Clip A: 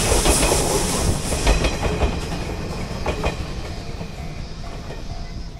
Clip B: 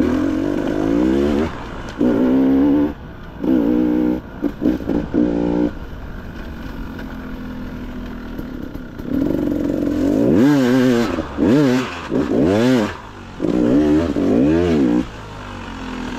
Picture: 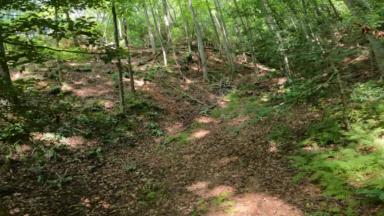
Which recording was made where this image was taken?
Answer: B